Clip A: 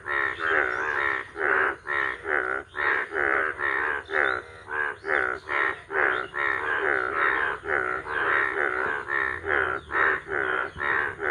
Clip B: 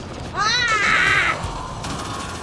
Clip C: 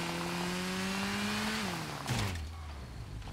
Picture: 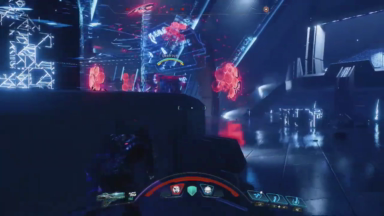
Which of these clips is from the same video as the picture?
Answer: B